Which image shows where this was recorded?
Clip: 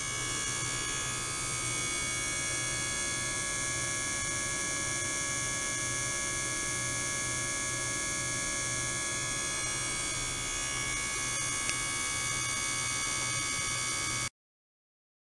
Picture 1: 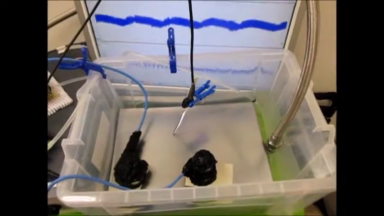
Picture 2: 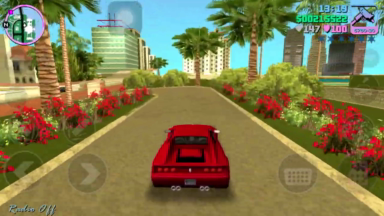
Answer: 1